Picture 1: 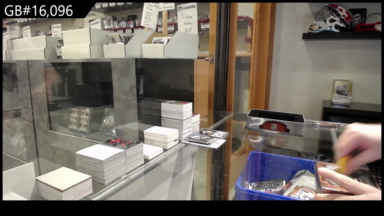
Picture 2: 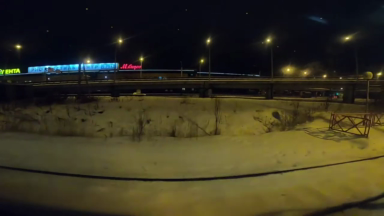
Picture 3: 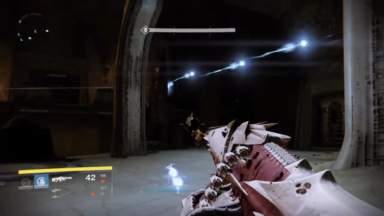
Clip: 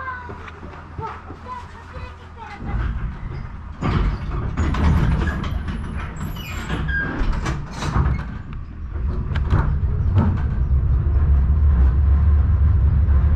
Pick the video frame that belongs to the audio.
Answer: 2